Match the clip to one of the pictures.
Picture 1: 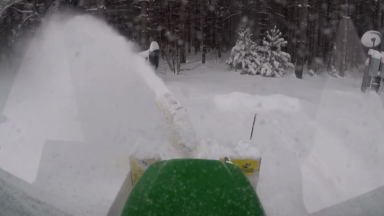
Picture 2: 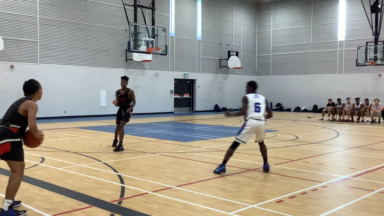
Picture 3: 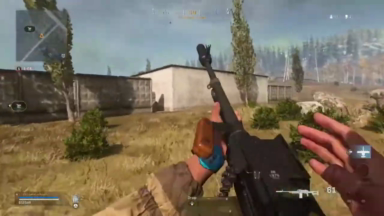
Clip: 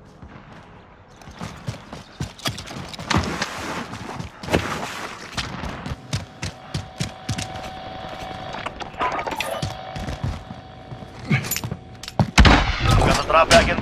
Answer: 3